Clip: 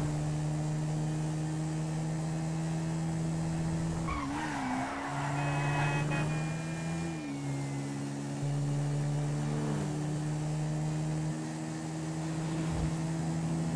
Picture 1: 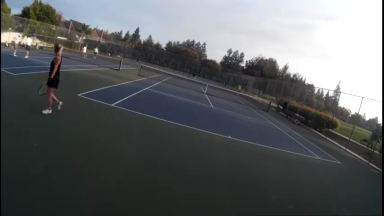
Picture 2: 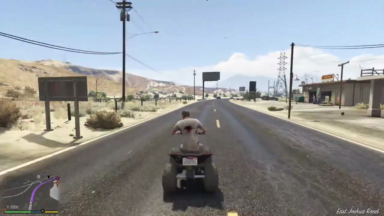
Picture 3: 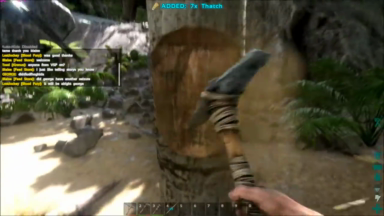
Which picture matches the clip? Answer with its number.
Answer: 2